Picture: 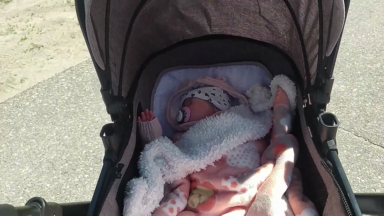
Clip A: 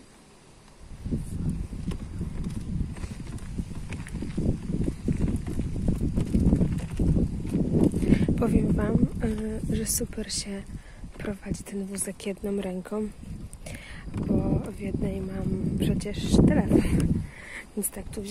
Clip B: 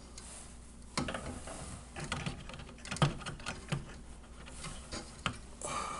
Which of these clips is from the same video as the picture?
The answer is A